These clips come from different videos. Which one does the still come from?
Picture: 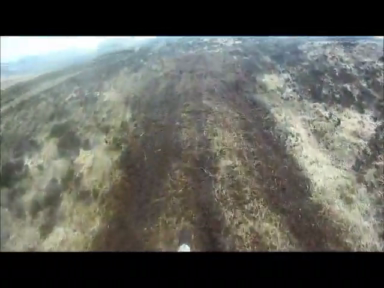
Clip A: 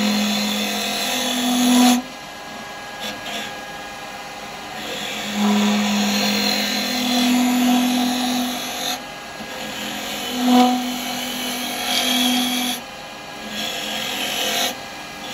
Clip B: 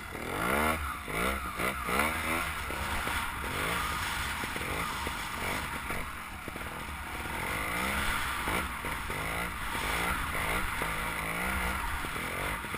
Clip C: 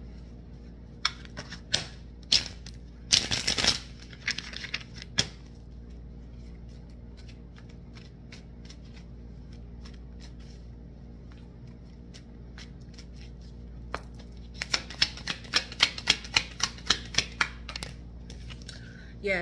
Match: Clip B